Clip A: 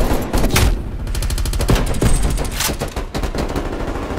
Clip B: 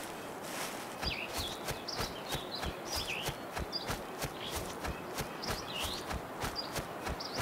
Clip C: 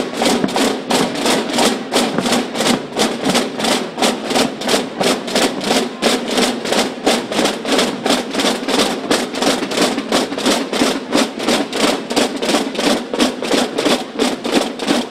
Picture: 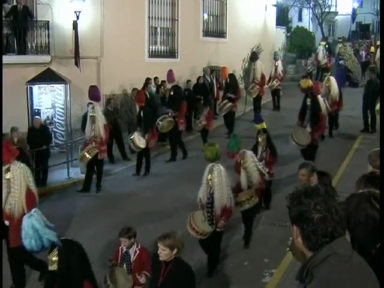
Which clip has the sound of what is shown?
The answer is C